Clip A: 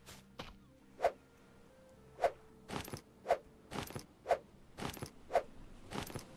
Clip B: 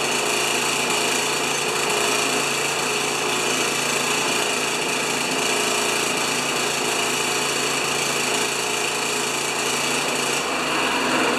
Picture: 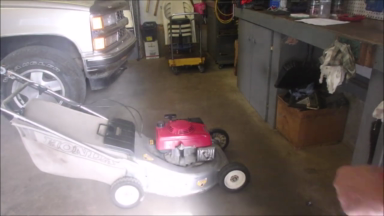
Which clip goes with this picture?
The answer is B